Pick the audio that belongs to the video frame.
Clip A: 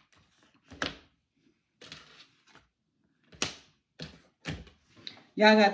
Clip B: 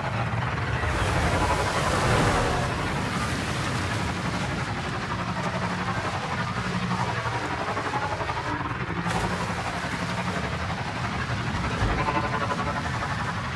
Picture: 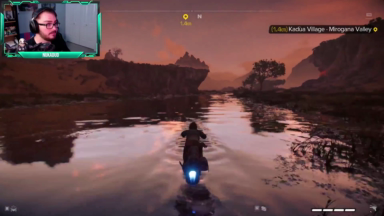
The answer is B